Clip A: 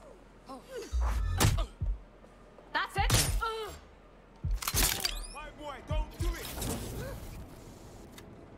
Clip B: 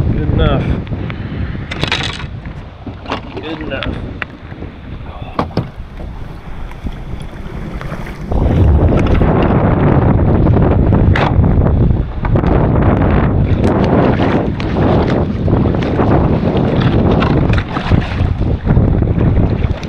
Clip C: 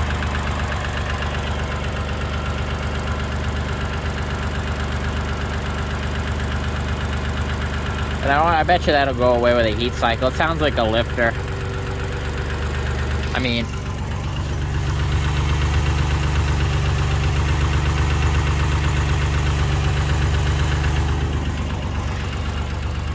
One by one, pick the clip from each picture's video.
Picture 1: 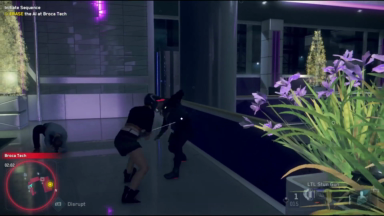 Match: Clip A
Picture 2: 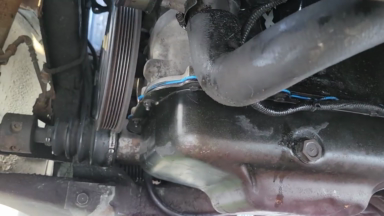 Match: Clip C